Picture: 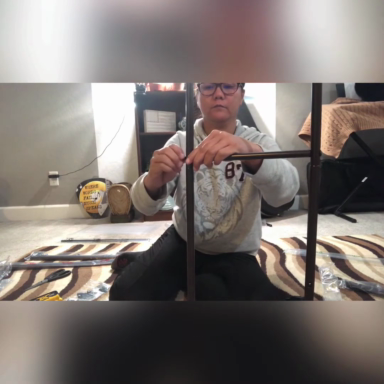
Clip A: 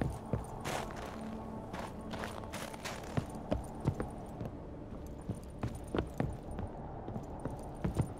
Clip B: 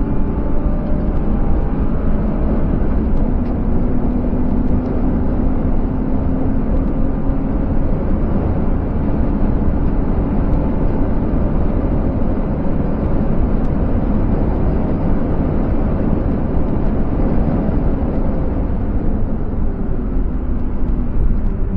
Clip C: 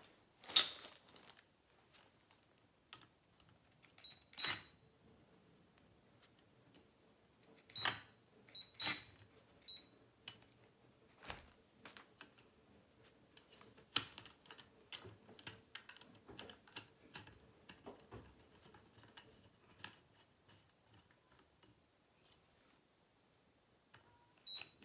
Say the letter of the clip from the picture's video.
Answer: C